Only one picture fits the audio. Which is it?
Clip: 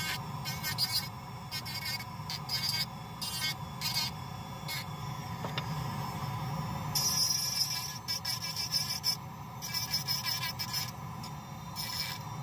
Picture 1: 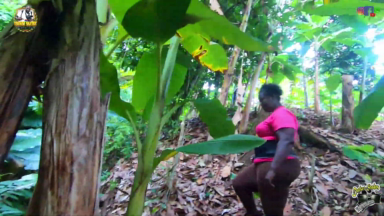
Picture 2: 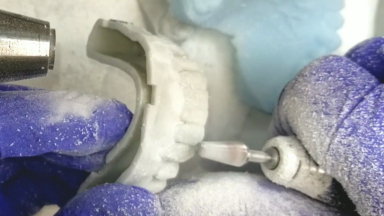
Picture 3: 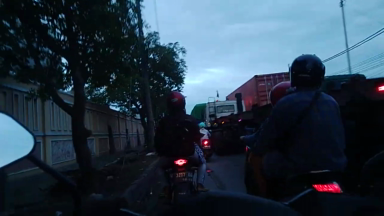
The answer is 2